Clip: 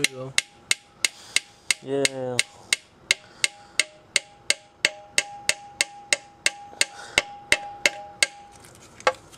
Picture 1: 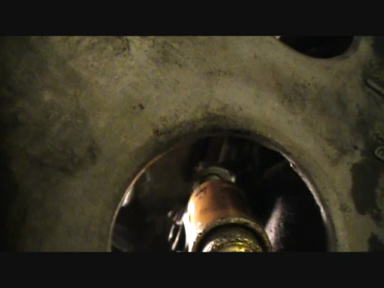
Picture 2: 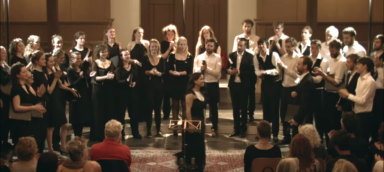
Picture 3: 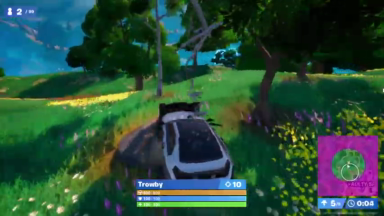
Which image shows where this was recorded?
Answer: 1